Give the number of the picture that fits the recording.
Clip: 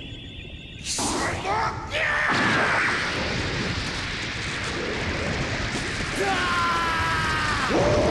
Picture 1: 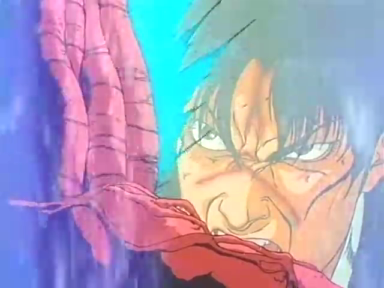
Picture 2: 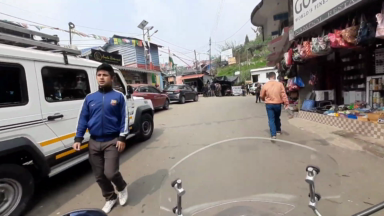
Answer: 1